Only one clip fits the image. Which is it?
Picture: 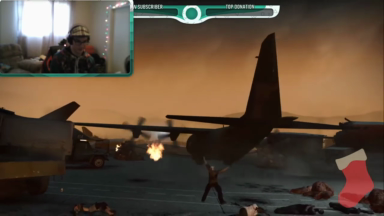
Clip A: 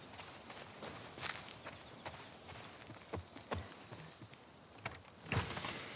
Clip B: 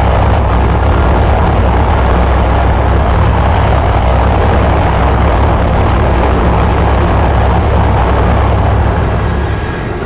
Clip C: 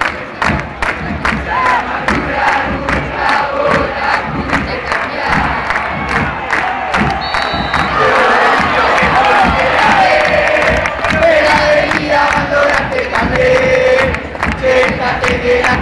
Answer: B